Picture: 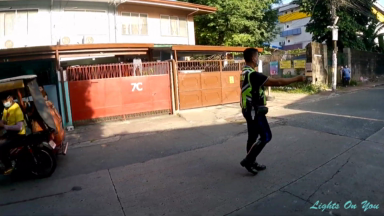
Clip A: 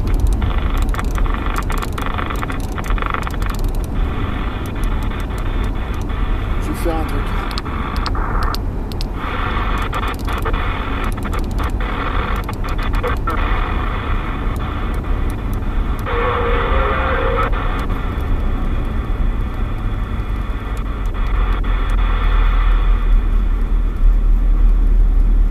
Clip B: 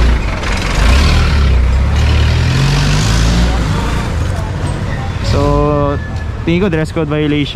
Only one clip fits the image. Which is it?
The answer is B